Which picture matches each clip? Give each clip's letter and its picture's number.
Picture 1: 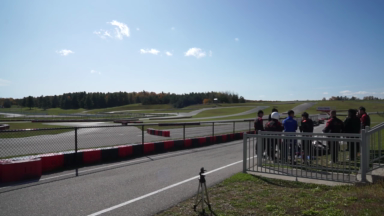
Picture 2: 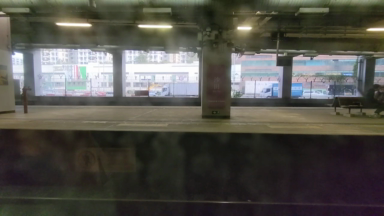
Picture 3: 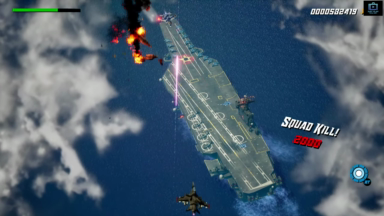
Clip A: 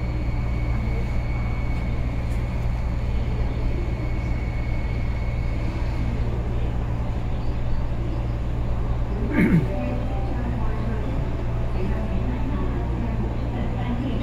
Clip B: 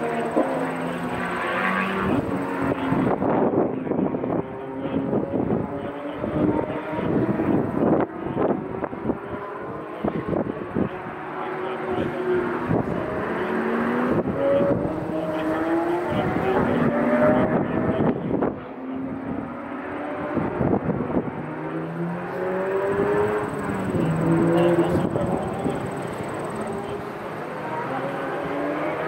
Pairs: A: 2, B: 1